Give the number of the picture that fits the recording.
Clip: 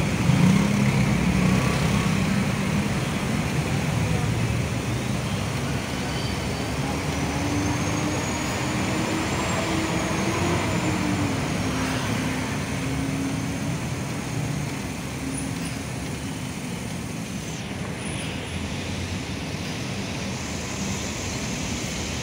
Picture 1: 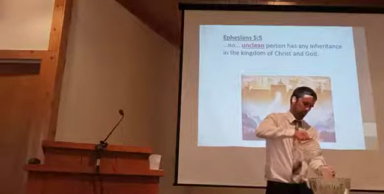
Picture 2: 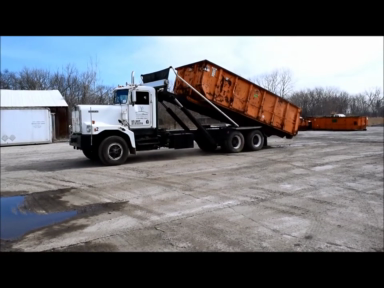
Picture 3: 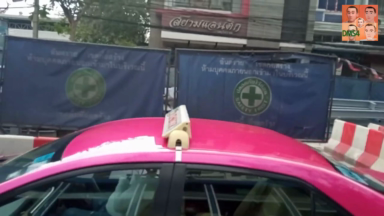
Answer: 3